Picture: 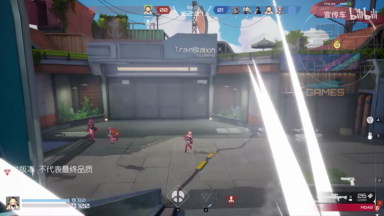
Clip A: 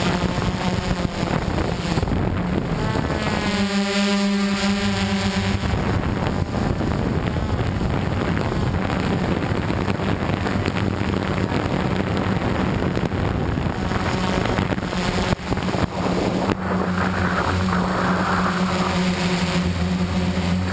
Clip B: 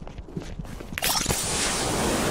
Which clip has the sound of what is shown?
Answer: B